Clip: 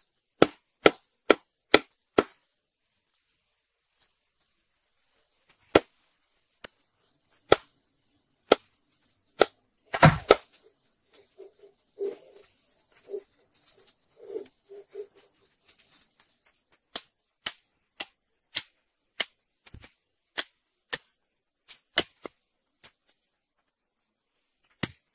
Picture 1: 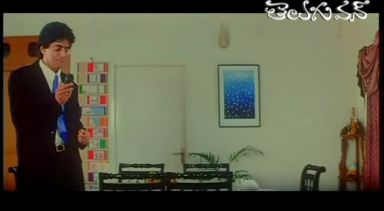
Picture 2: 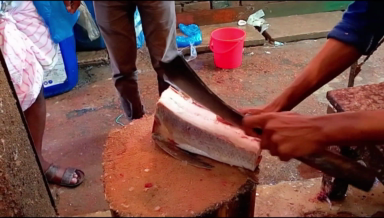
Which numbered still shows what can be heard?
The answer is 2